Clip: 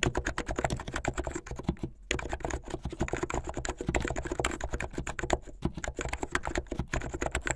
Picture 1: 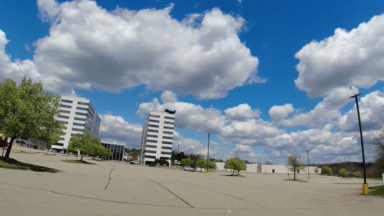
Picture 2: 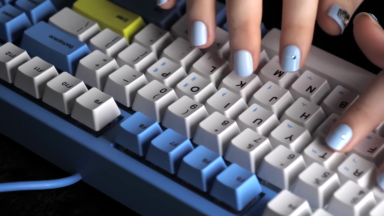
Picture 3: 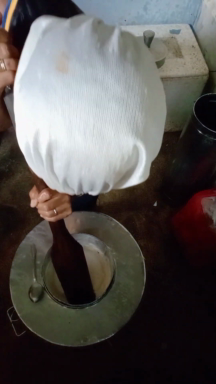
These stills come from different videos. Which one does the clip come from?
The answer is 2